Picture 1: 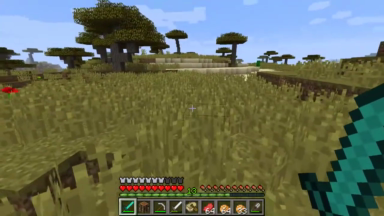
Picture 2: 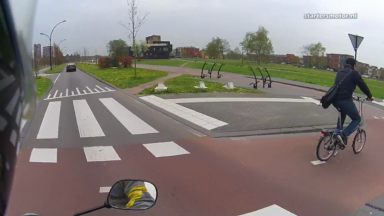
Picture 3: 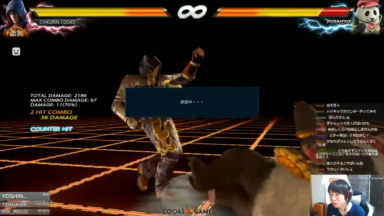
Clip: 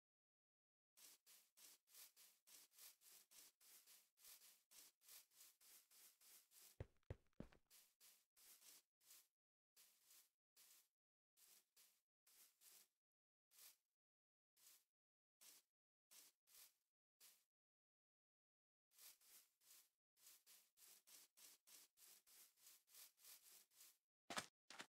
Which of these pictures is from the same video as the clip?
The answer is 1